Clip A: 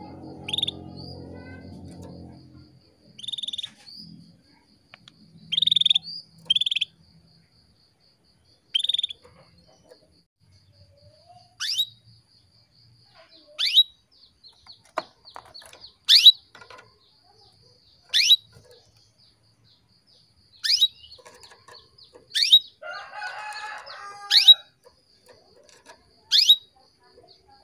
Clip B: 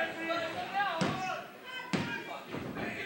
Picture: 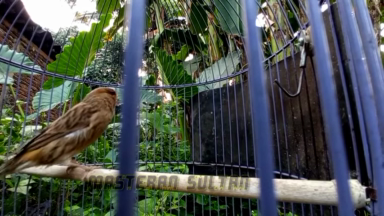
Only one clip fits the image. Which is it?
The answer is A